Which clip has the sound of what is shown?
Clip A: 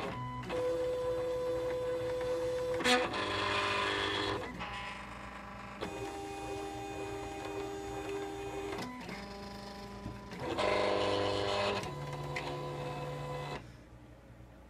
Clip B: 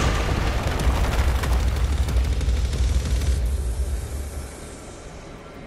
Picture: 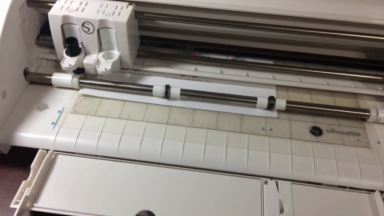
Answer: A